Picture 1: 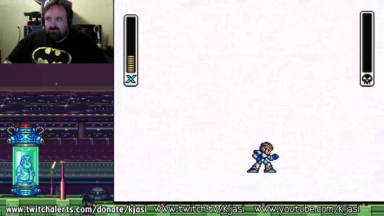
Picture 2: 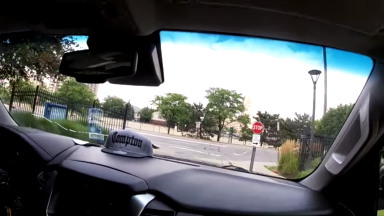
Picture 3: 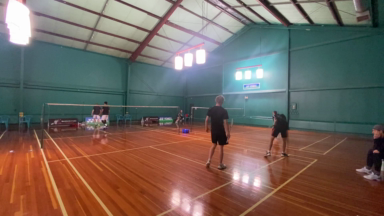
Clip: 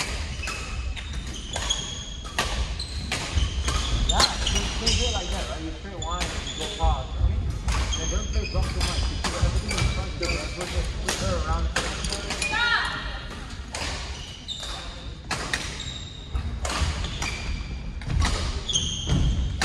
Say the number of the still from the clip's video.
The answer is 3